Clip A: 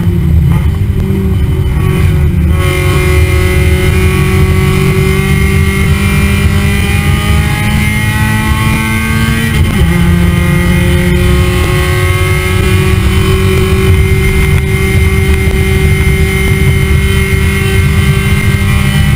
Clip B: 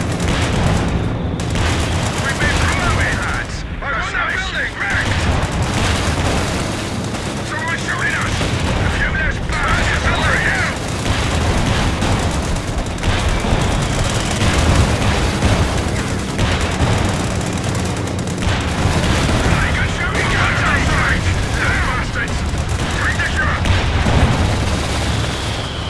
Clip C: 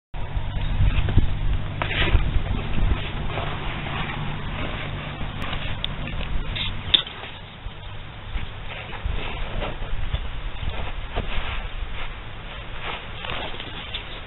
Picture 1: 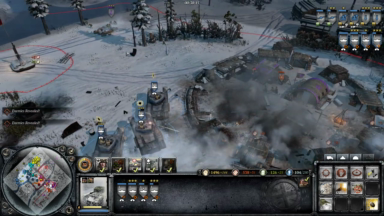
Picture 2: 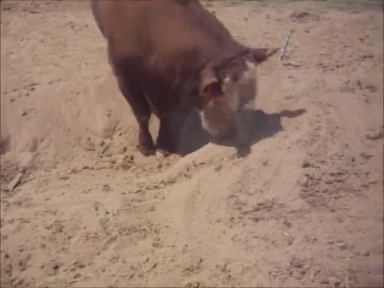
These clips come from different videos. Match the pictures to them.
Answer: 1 B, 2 C